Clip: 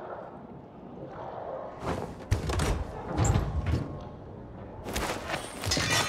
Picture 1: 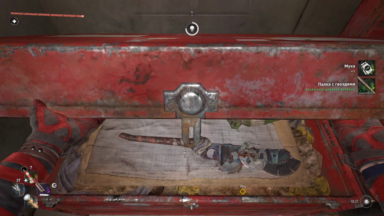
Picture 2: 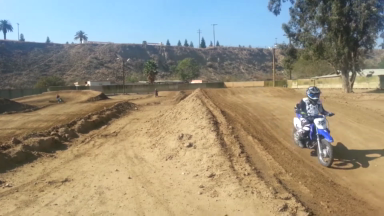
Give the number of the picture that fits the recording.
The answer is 1